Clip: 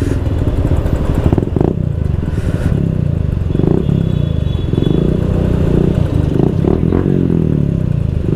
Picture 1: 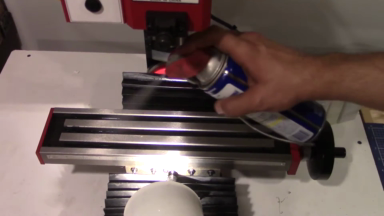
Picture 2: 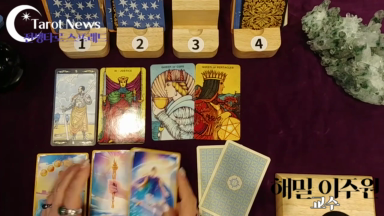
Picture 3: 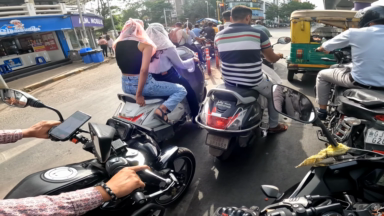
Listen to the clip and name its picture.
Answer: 3